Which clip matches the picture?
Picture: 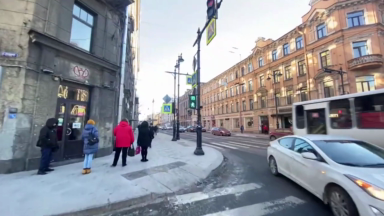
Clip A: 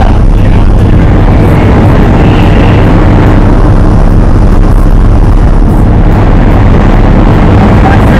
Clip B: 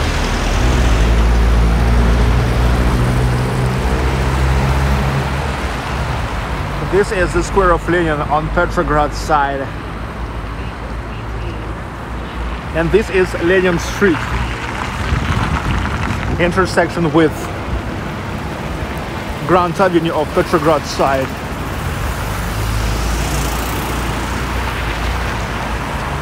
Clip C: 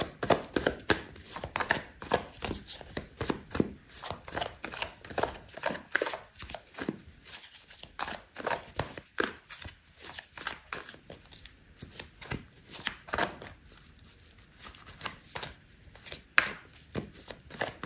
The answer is B